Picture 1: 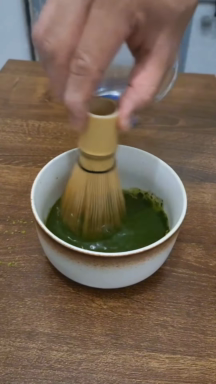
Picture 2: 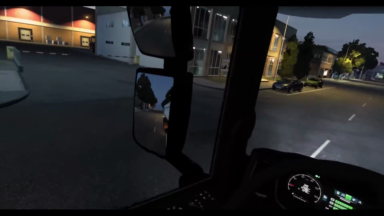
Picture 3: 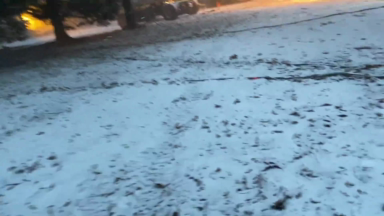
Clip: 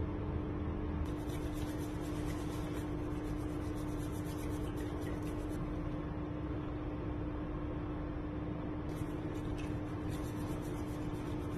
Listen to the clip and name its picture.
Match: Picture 1